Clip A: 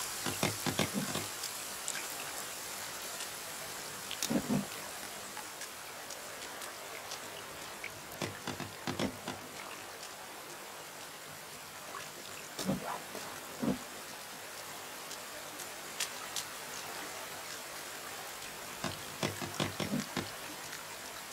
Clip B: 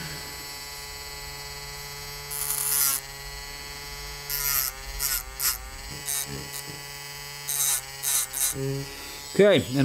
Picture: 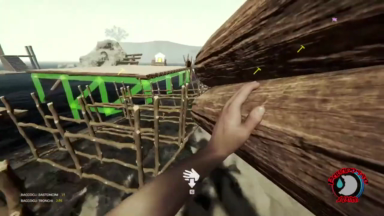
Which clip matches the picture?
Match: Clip A